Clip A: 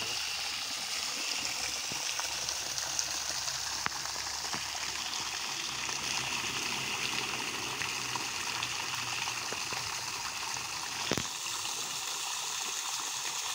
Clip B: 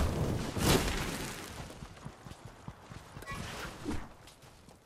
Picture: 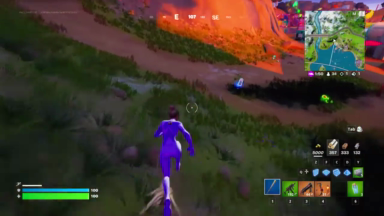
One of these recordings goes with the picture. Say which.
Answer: B